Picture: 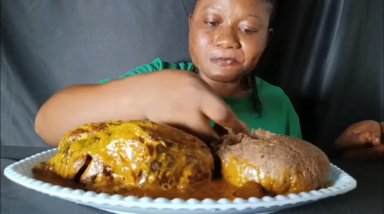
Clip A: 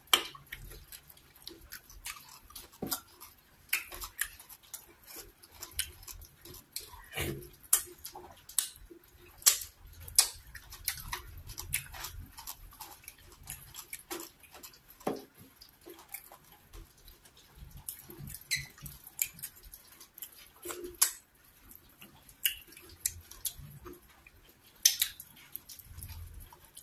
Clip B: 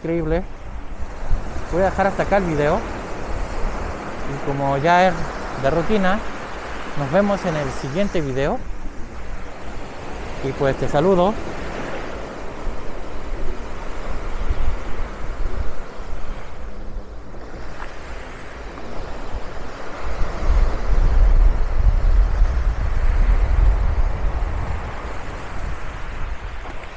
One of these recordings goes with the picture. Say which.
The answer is A